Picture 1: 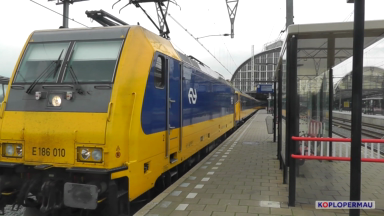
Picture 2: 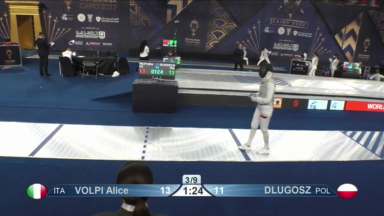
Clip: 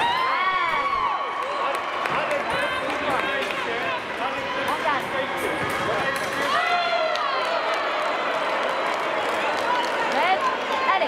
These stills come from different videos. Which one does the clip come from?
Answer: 2